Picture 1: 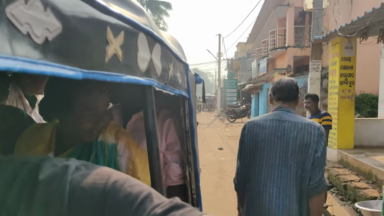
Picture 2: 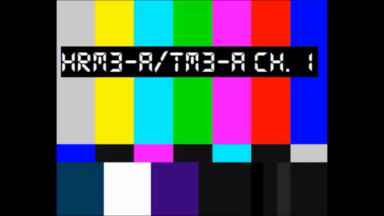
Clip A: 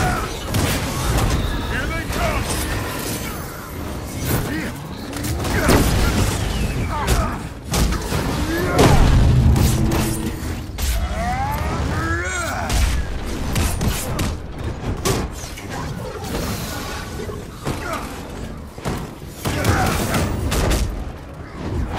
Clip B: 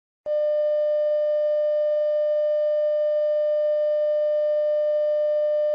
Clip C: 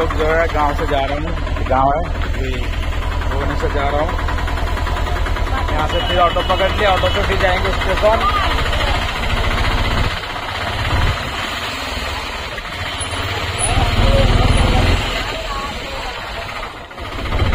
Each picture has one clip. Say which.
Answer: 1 C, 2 B